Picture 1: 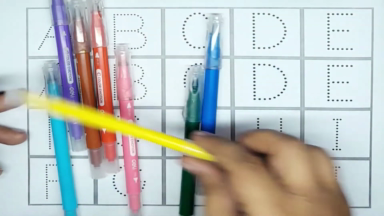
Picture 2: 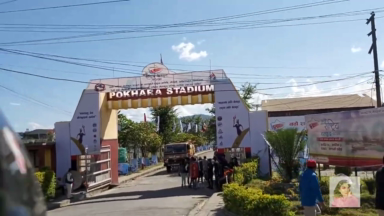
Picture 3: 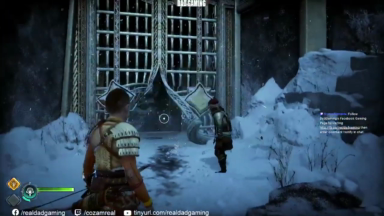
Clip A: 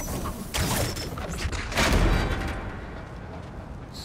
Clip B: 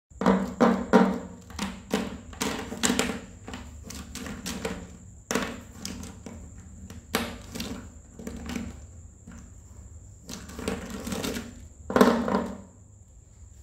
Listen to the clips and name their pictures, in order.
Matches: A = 3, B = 1